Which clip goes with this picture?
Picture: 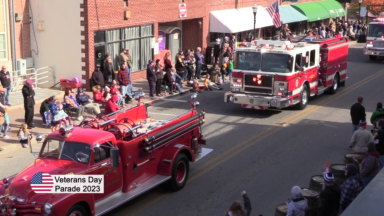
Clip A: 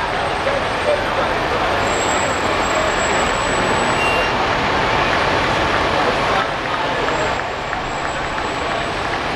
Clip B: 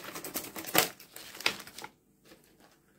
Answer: A